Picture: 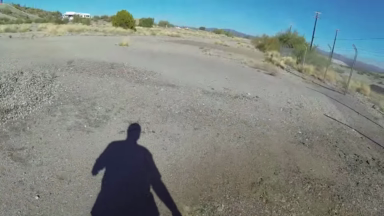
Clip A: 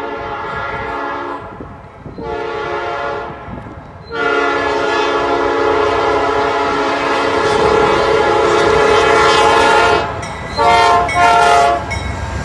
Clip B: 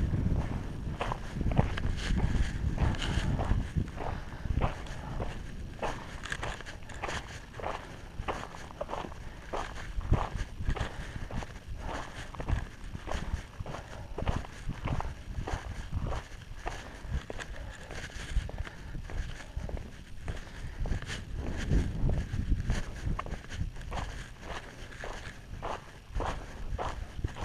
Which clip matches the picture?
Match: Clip B